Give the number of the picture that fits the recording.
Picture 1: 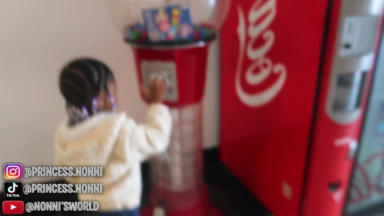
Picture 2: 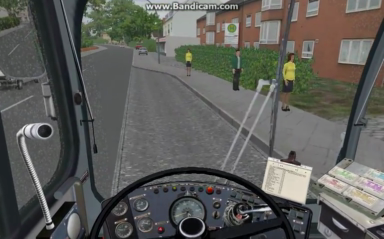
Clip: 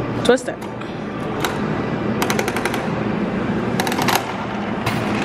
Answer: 1